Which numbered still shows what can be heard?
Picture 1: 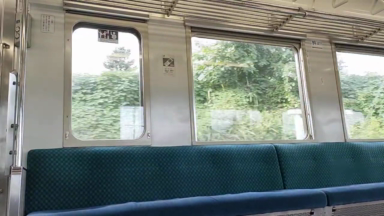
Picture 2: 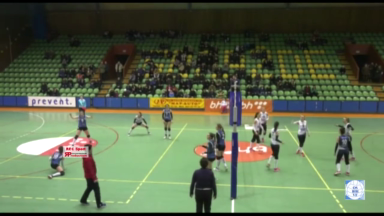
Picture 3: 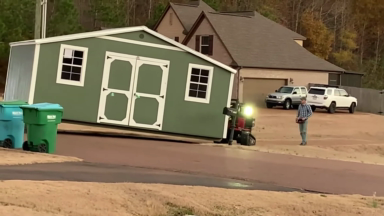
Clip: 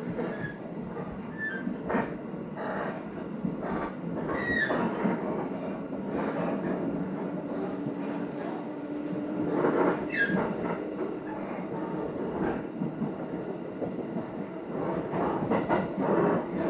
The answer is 1